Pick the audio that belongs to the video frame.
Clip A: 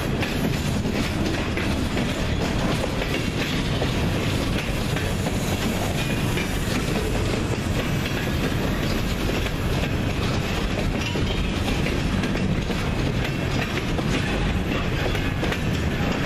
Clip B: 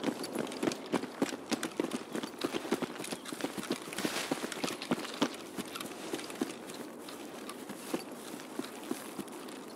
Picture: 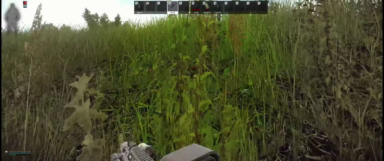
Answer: B